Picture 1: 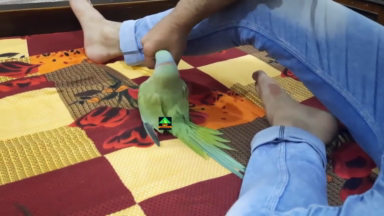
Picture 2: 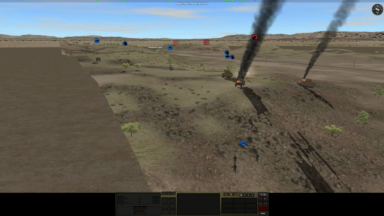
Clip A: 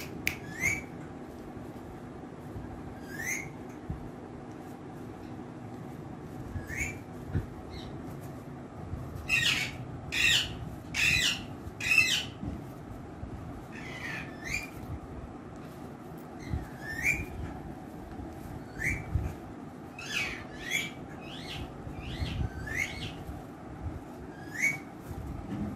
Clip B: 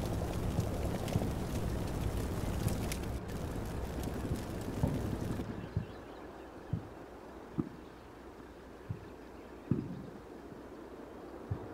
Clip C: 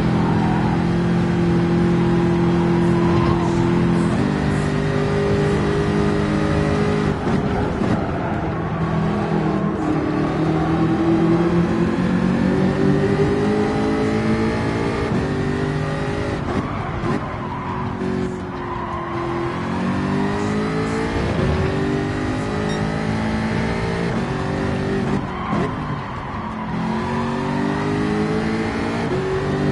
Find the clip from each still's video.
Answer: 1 A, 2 B